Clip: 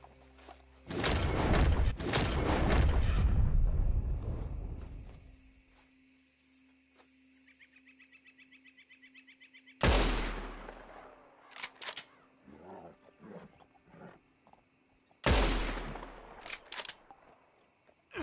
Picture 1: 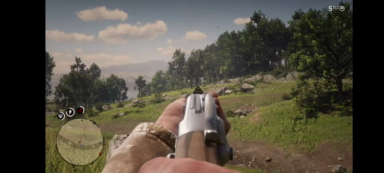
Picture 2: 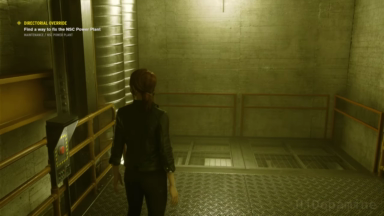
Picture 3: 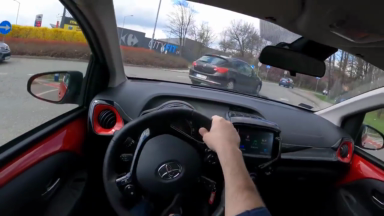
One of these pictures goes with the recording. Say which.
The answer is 1